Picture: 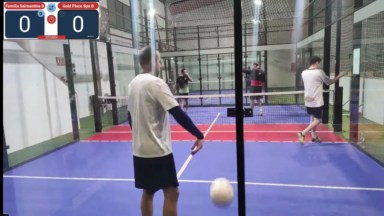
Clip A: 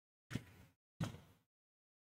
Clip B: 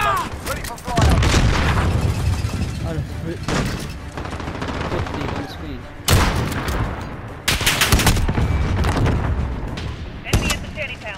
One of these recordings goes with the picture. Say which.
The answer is A